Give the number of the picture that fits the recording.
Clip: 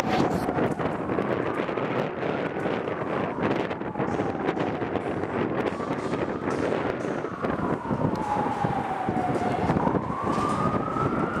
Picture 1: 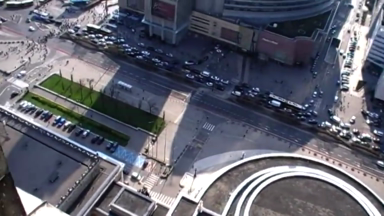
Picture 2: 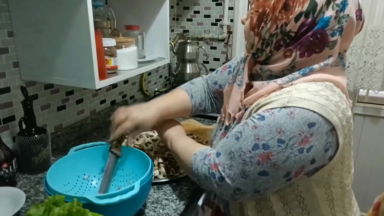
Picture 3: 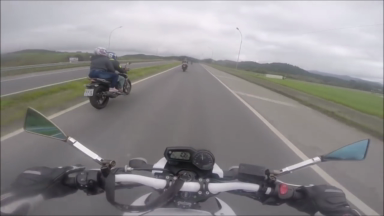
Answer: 1